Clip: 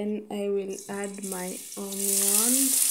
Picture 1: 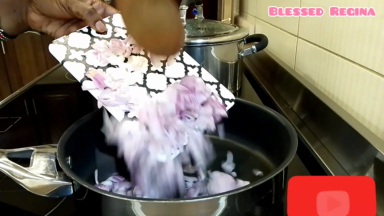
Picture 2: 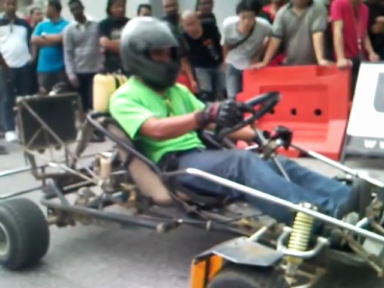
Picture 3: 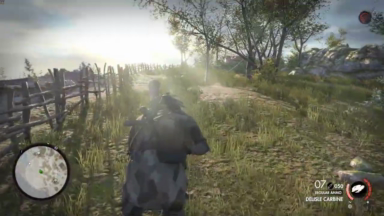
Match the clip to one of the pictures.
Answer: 1